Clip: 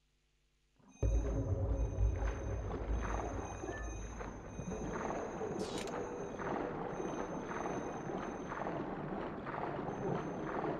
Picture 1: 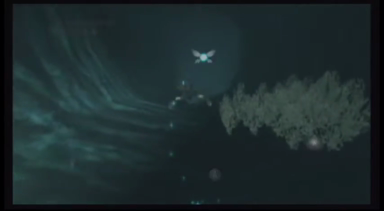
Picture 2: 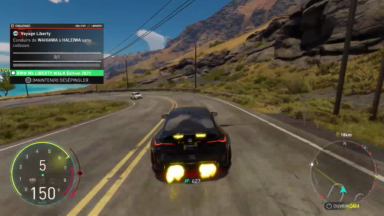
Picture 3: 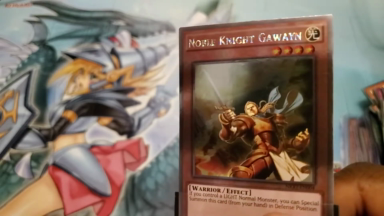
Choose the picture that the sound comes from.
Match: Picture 1